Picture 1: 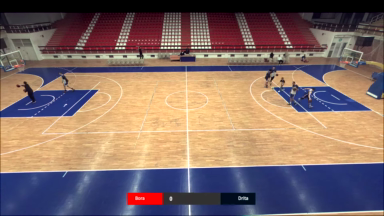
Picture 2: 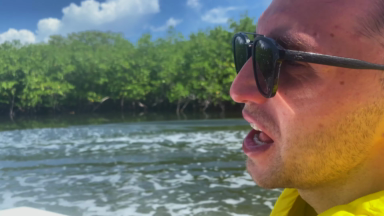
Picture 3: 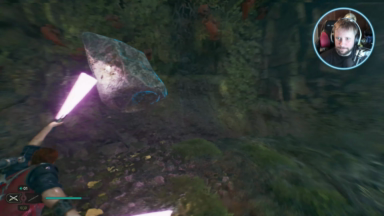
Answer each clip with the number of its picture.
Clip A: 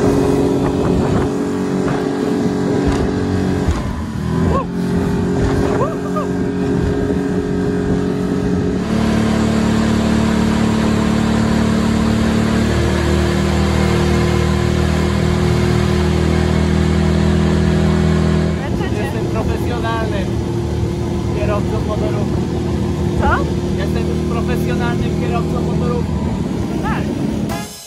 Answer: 2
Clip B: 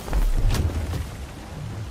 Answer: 3